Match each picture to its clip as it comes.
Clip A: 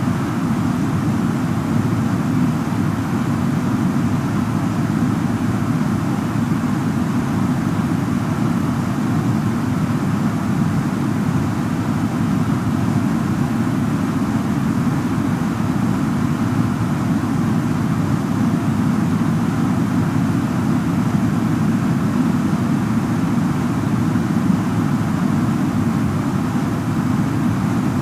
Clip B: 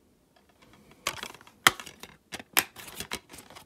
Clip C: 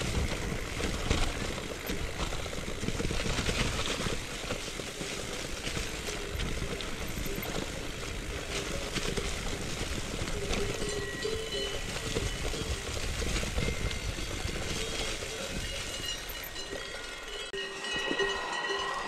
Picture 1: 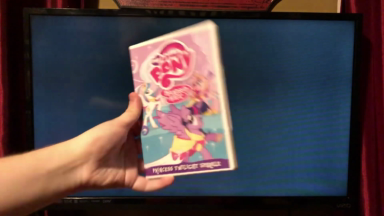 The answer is B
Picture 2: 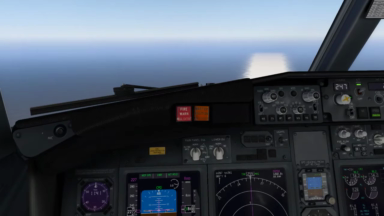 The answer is A